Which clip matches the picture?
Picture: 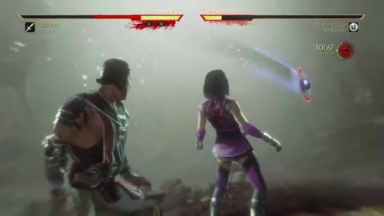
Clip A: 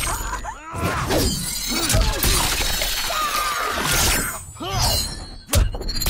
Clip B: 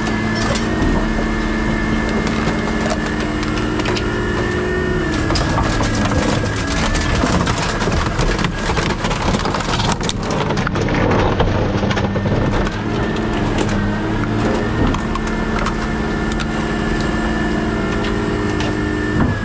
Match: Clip A